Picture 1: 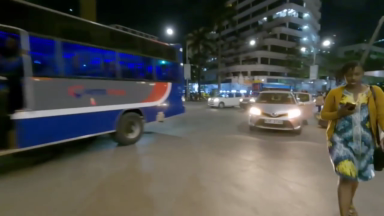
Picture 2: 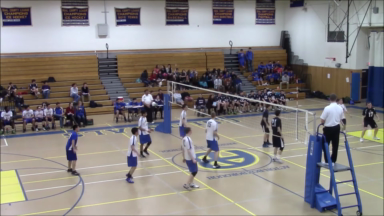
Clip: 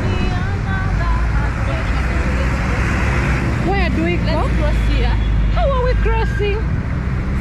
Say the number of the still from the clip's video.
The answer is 1